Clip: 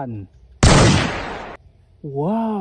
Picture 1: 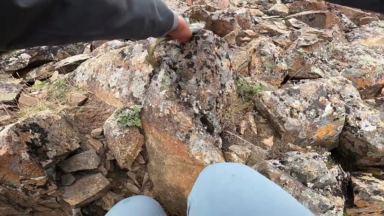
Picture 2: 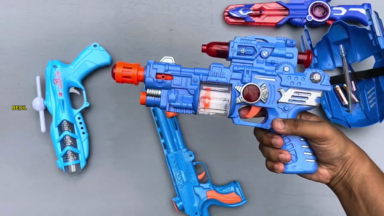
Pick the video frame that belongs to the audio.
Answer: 2